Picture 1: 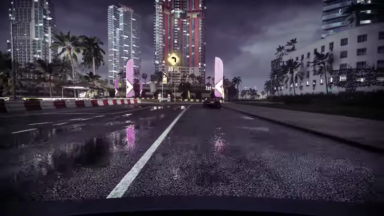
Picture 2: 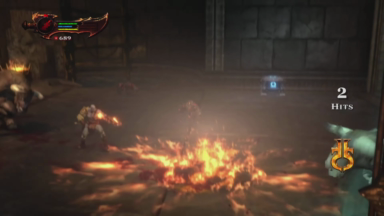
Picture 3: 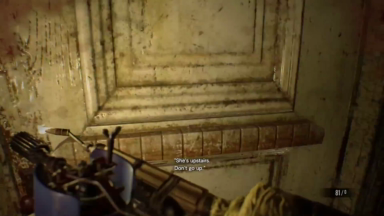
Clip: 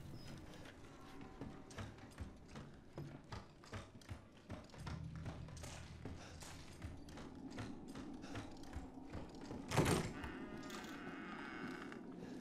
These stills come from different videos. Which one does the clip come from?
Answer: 3